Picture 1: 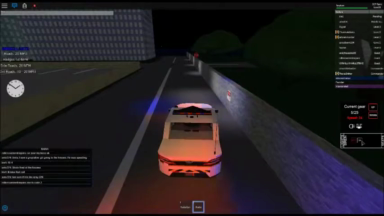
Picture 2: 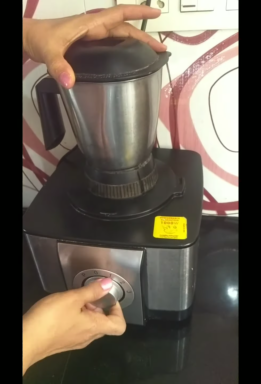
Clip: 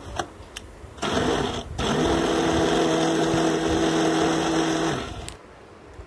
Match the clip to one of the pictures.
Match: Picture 2